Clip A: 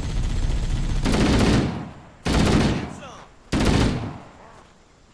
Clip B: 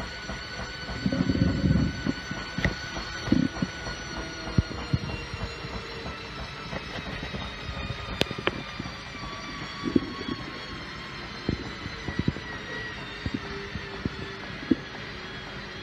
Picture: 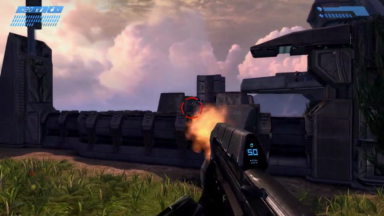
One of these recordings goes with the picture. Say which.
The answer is A